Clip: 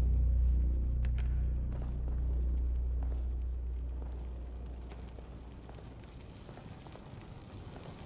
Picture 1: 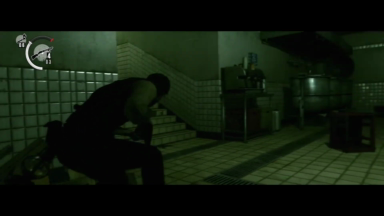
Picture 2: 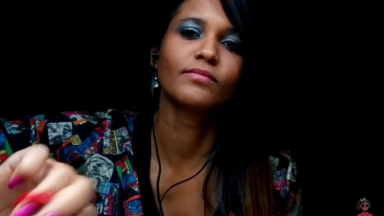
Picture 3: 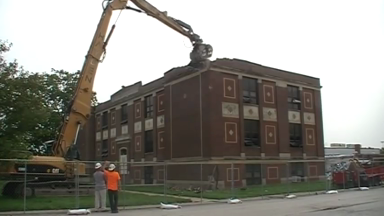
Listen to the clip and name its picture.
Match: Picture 1